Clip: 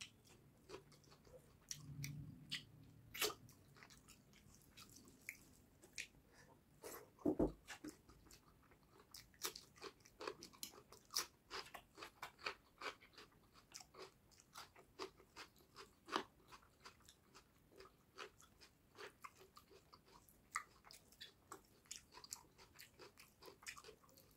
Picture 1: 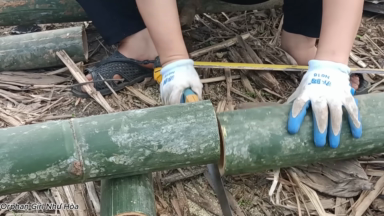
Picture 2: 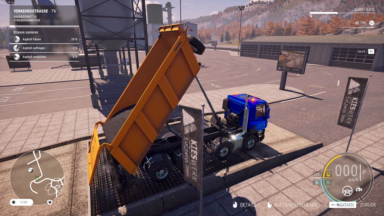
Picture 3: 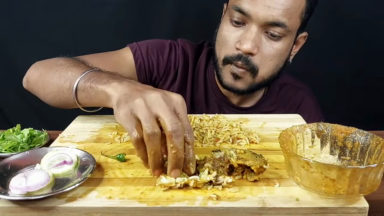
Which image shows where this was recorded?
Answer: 3